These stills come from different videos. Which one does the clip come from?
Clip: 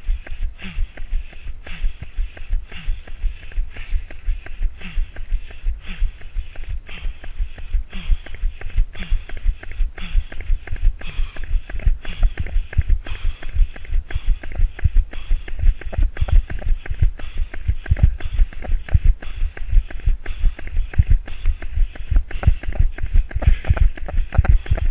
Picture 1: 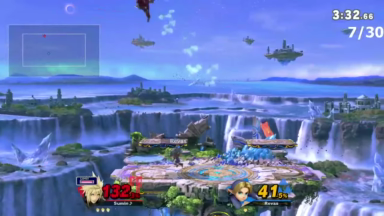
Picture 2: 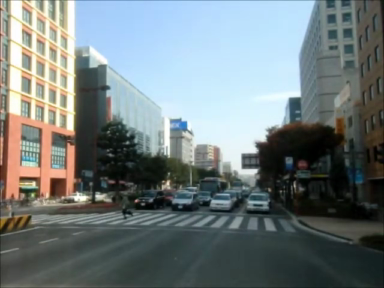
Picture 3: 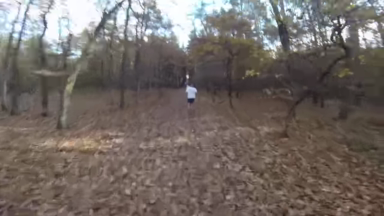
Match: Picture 3